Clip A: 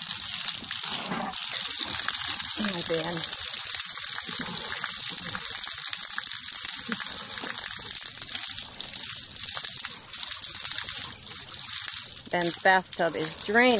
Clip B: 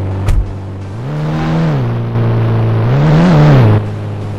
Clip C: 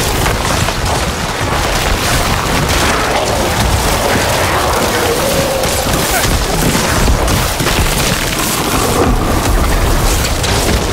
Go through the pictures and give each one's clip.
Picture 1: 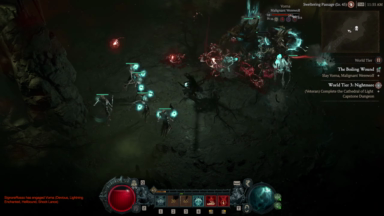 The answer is C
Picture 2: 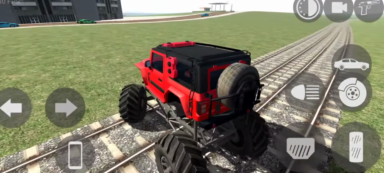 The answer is B